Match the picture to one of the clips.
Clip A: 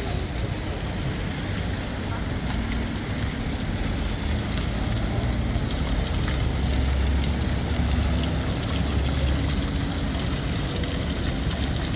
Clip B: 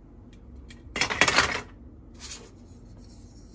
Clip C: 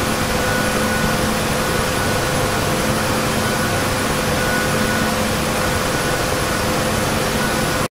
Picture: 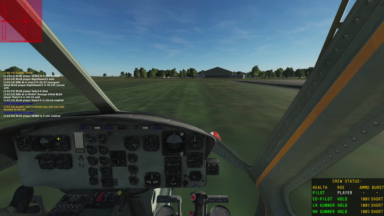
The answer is C